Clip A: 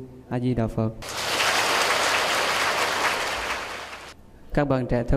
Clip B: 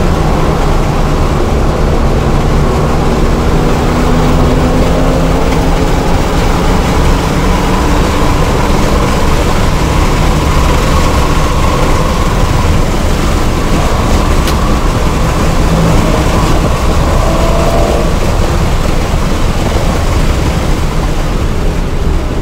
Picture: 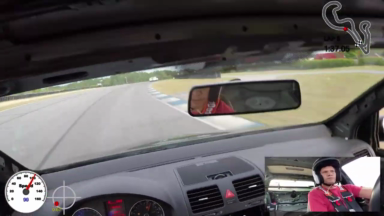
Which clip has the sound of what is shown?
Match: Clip B